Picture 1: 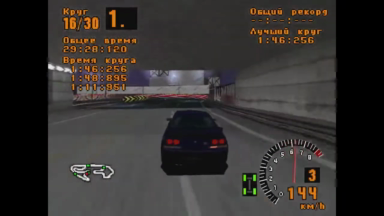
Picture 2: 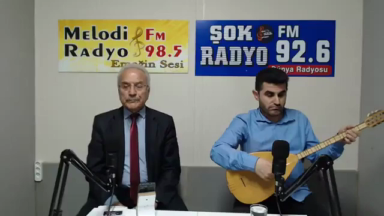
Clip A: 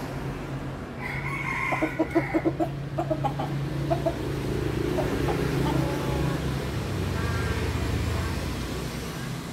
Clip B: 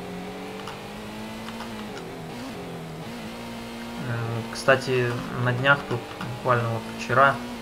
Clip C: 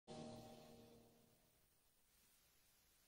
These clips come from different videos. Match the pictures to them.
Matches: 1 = B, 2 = C